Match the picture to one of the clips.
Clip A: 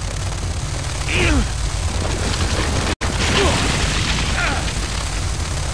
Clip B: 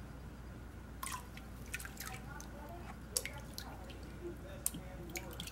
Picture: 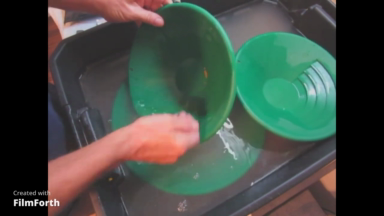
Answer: B